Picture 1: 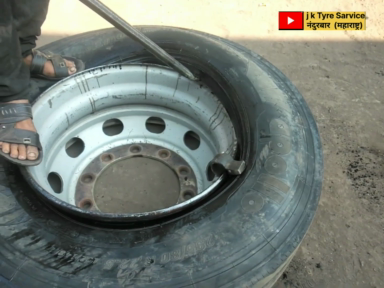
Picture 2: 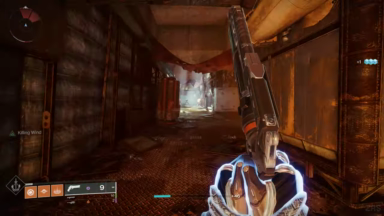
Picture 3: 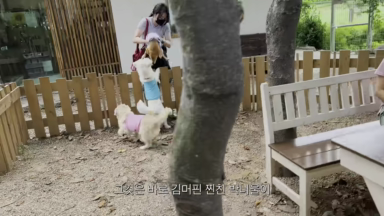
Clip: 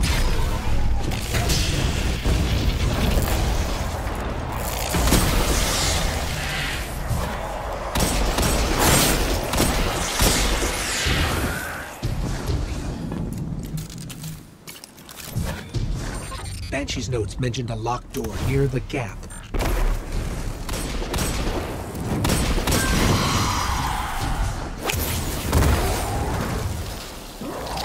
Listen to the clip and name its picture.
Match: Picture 2